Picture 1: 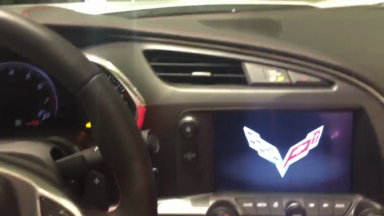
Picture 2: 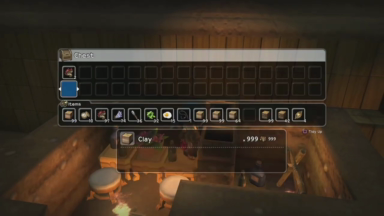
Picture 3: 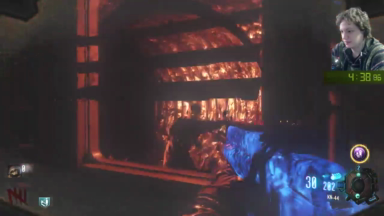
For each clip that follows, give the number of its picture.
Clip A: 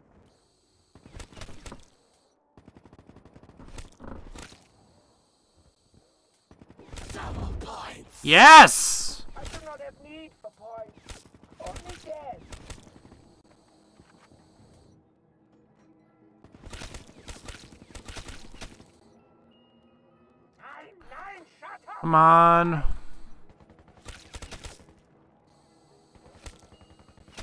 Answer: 3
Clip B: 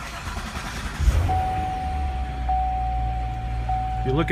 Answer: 1